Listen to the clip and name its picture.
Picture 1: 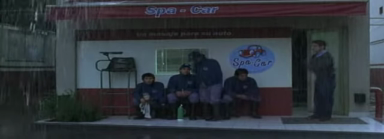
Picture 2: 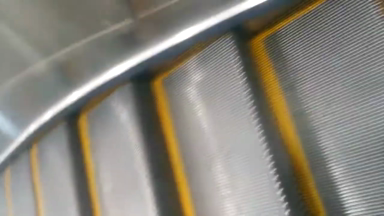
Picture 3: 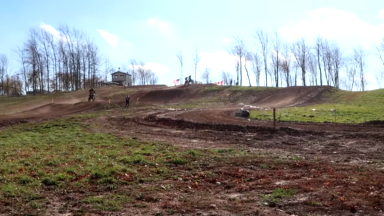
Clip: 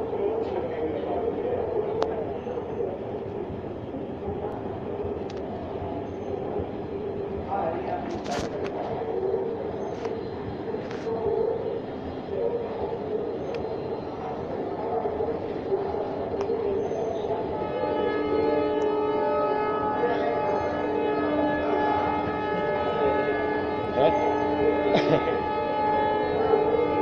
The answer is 2